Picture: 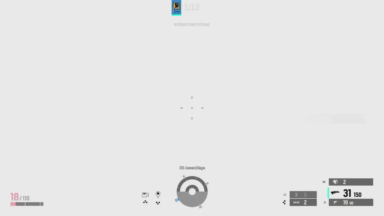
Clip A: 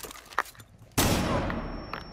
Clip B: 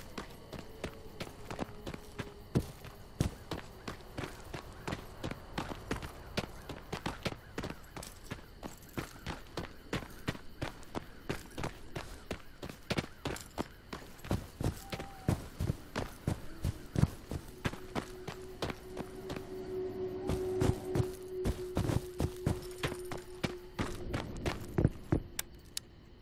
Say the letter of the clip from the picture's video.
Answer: A